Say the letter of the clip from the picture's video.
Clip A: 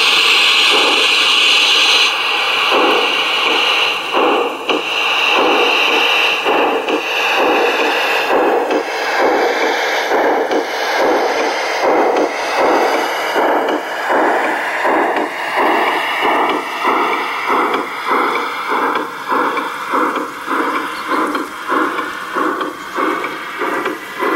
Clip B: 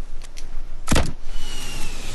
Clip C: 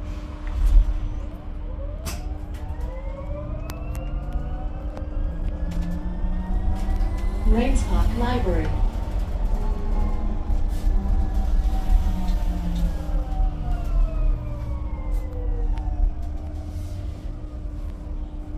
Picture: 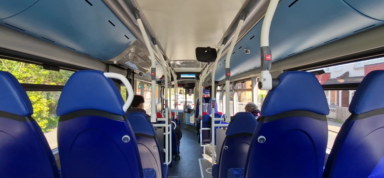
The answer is C